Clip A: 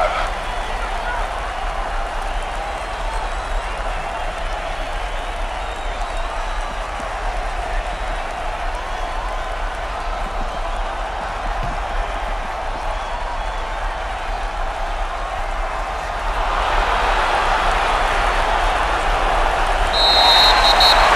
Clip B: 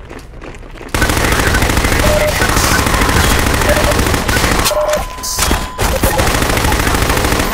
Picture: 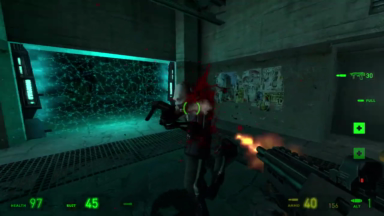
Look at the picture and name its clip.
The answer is B